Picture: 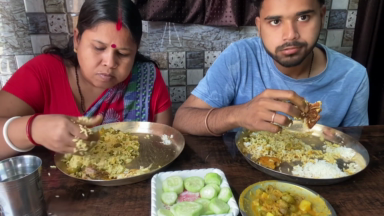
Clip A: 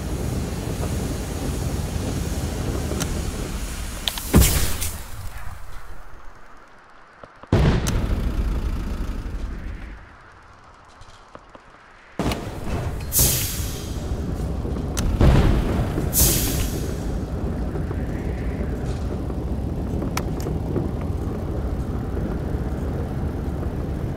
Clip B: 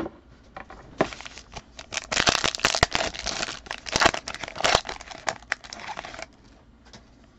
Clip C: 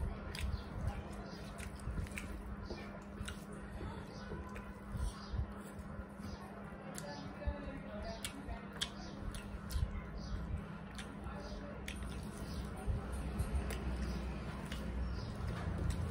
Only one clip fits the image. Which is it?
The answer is C